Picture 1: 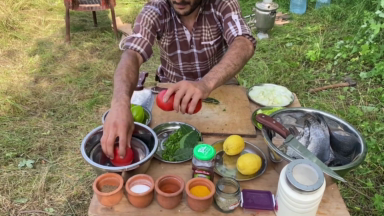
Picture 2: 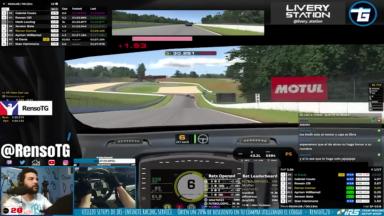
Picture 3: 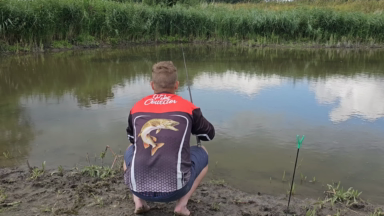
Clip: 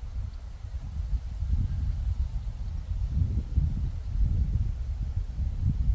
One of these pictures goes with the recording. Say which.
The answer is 3